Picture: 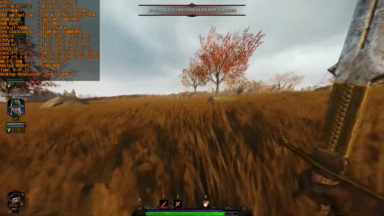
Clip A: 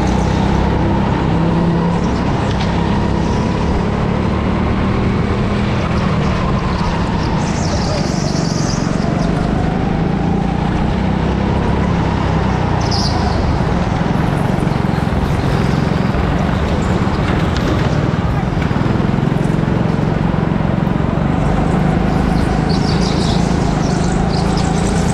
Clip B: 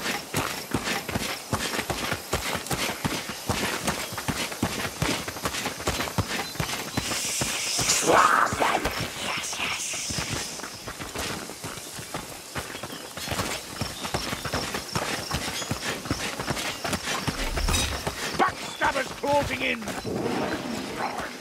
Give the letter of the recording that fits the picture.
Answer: B